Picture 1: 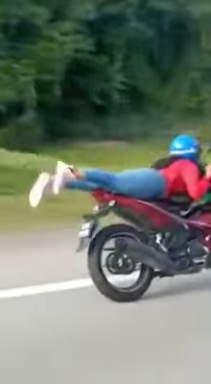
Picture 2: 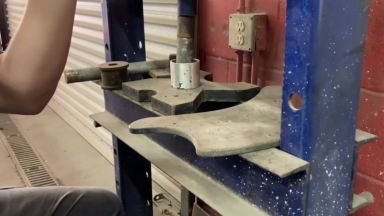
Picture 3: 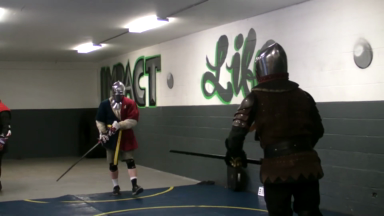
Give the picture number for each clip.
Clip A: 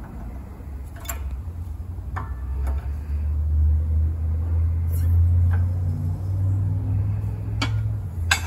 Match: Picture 2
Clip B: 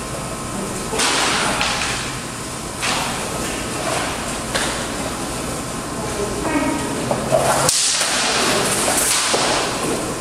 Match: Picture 3